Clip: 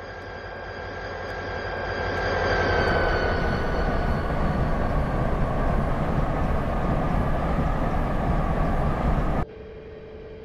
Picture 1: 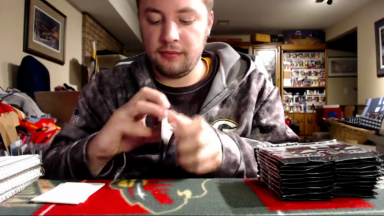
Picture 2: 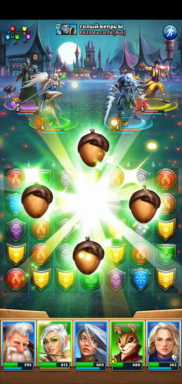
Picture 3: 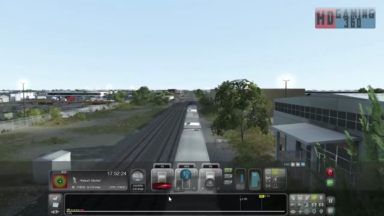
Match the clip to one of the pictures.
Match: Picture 3